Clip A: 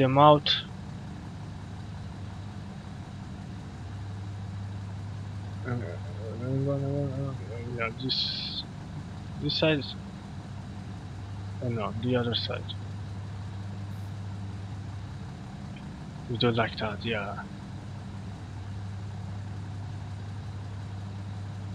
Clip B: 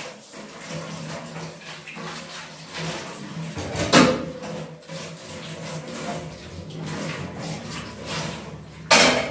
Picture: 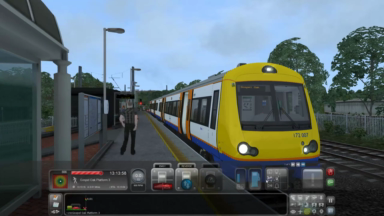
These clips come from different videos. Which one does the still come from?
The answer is A